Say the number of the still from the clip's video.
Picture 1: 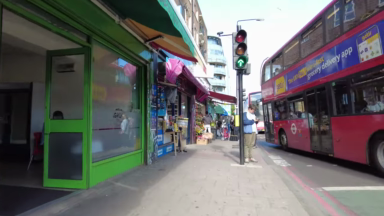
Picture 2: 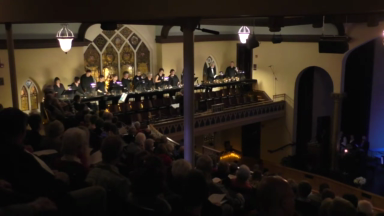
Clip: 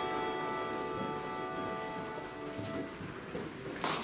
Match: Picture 2